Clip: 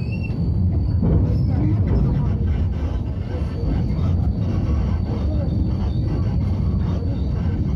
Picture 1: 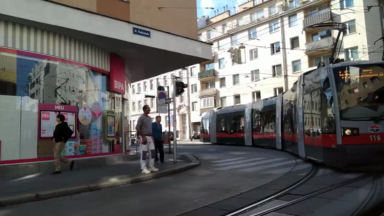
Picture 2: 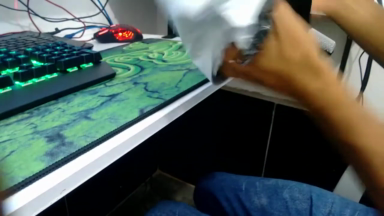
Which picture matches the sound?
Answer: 1